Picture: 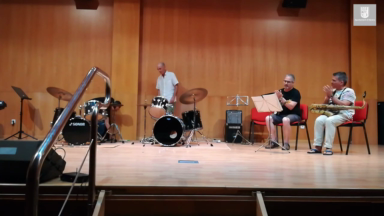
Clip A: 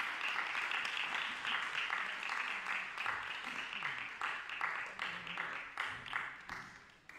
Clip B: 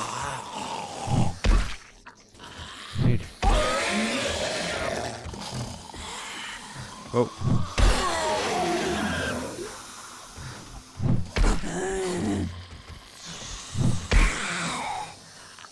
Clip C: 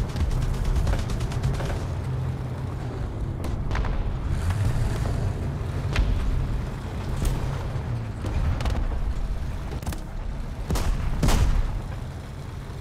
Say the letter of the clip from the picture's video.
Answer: A